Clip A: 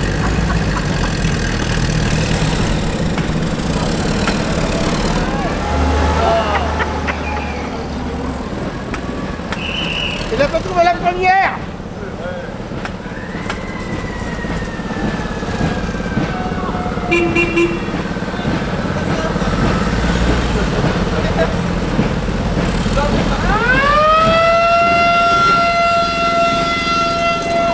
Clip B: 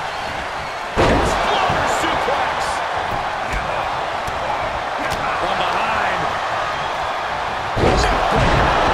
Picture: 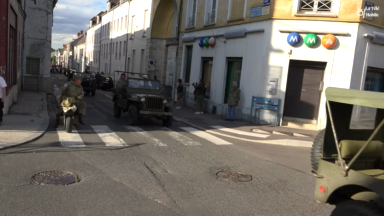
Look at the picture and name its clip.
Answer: A